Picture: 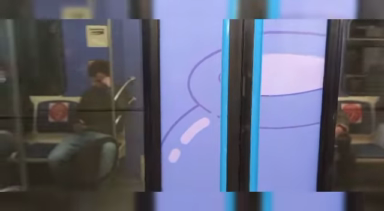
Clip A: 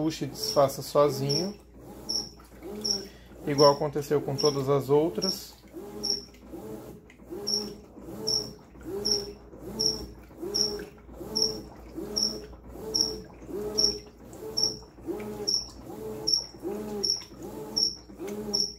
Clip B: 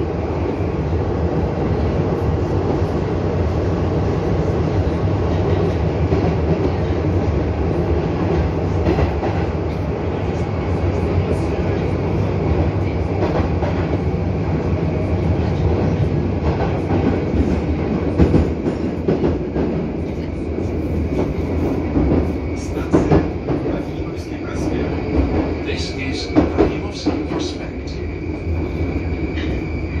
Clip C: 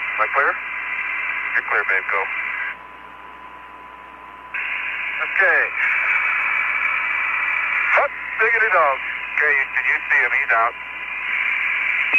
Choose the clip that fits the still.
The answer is B